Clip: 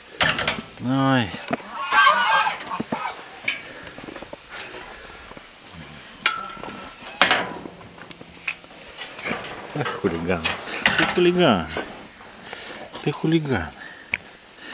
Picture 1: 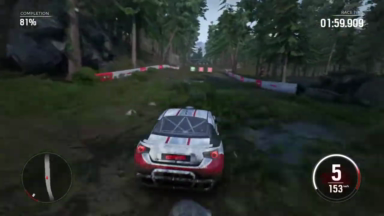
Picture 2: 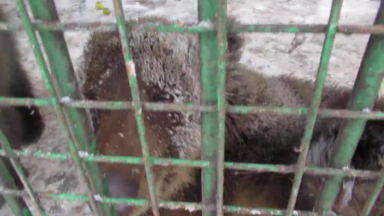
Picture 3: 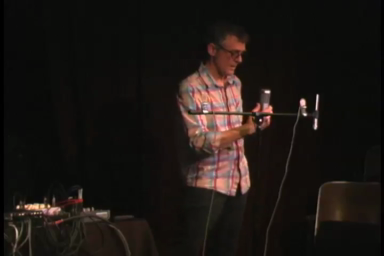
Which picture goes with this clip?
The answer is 2